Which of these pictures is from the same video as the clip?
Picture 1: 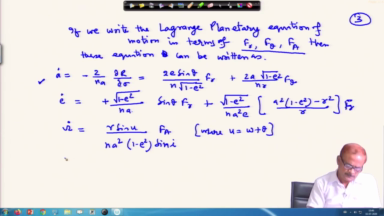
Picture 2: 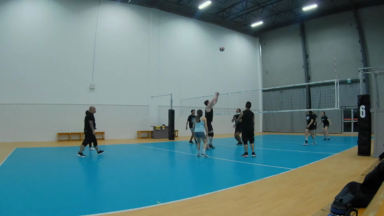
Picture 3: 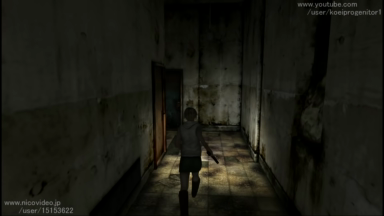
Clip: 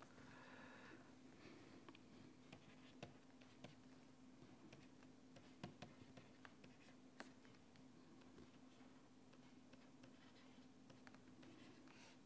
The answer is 1